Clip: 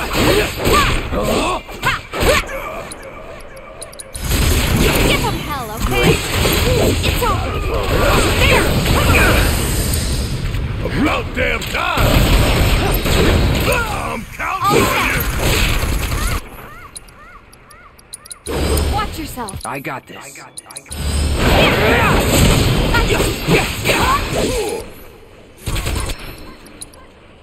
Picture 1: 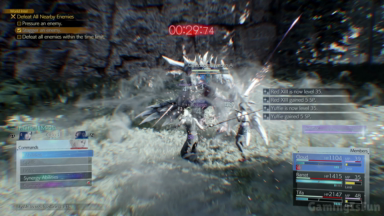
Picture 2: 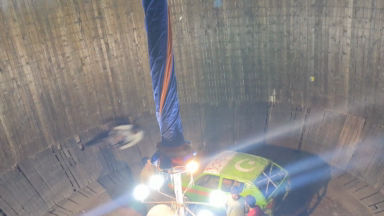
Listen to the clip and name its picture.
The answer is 1